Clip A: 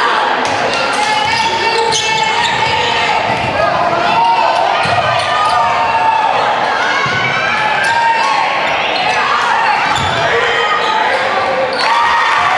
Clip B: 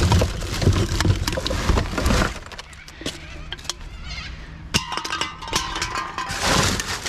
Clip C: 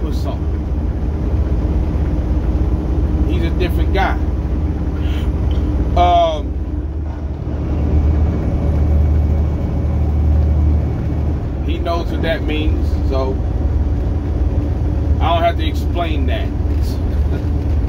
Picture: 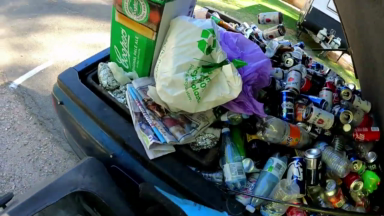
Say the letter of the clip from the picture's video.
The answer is B